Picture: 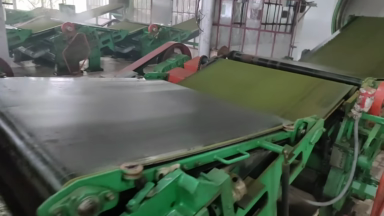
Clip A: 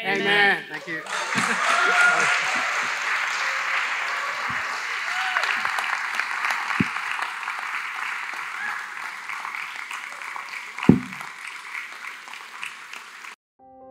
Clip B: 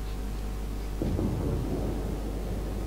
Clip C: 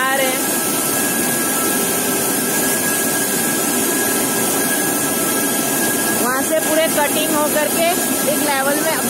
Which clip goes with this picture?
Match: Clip C